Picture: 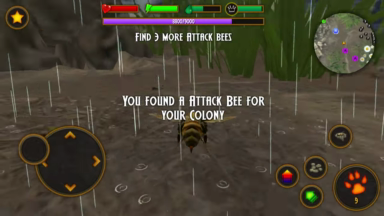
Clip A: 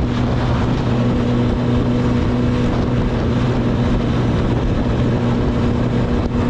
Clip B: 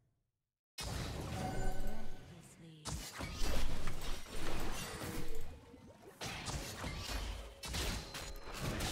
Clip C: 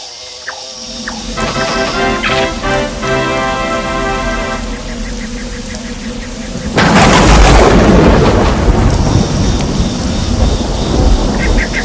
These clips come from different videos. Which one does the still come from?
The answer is C